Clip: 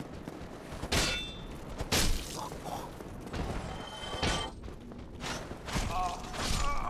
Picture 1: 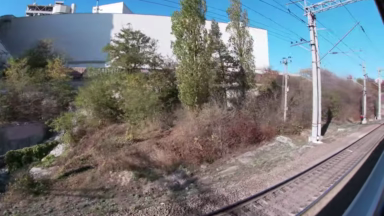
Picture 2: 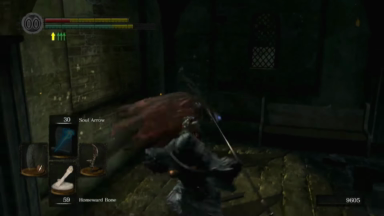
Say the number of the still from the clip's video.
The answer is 2